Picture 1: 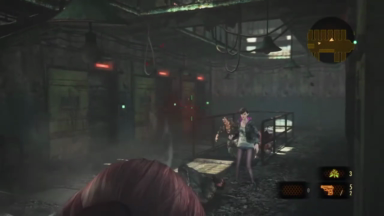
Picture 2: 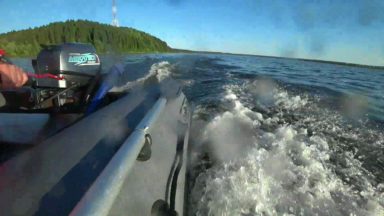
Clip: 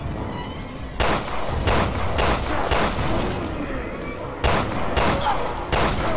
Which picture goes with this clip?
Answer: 1